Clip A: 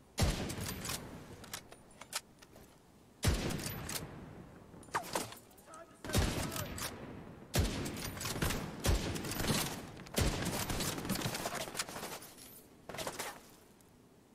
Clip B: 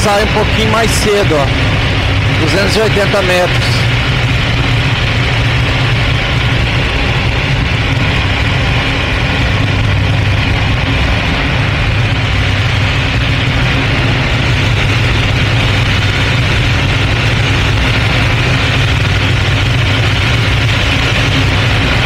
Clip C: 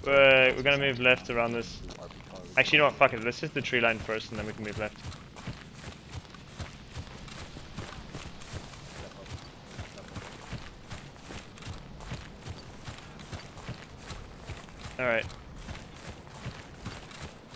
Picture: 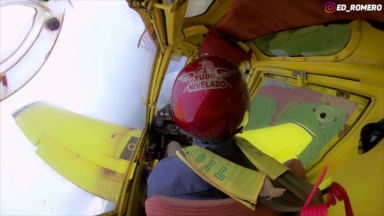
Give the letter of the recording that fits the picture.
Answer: B